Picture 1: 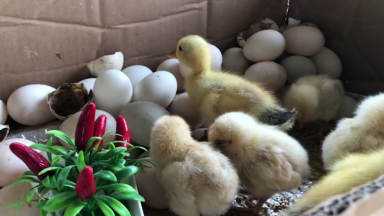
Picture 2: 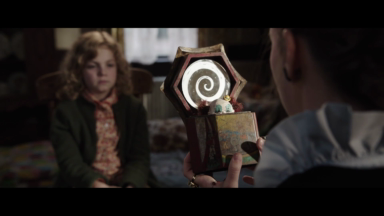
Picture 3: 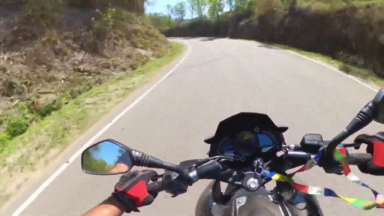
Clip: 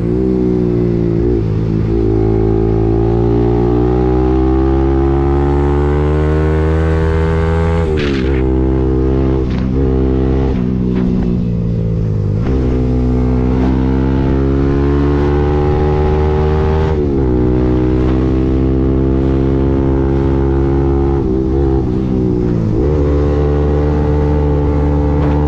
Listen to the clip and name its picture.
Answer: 3